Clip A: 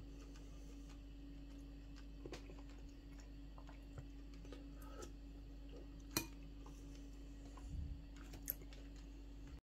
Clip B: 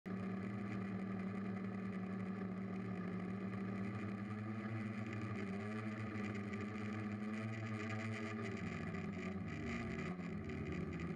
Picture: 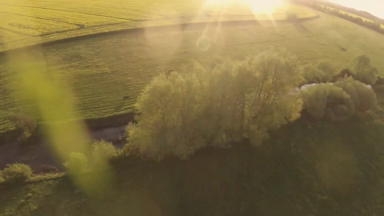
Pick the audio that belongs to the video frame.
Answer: B